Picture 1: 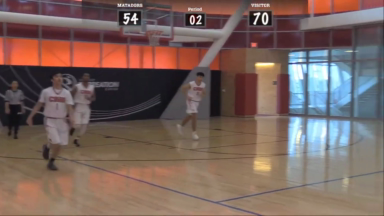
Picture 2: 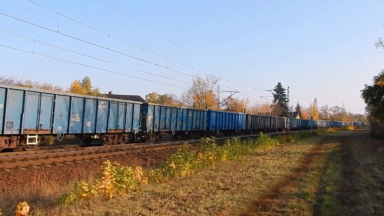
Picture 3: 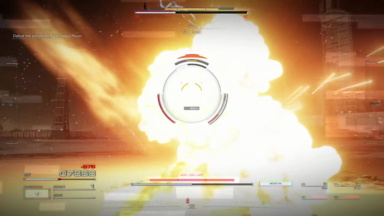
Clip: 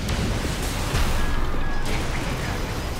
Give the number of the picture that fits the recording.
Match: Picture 3